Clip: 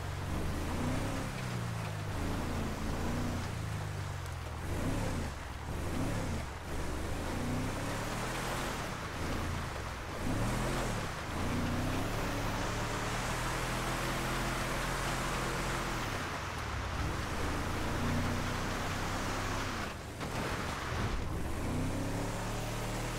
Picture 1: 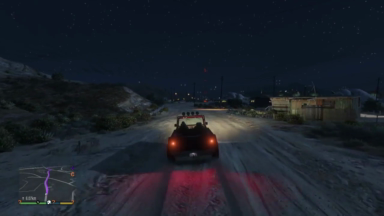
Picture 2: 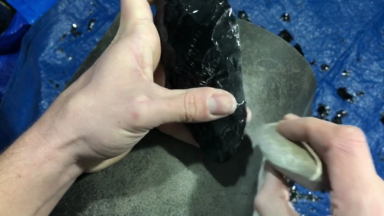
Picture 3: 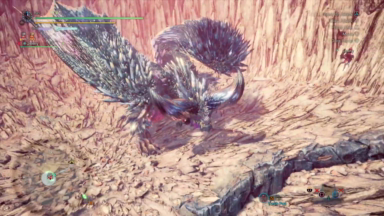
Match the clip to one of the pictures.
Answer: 1